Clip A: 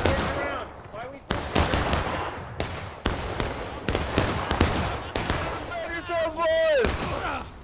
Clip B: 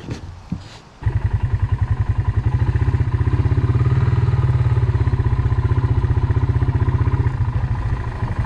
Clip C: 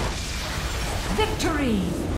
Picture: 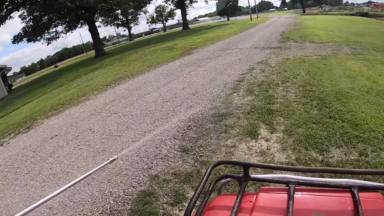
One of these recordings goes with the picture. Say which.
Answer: B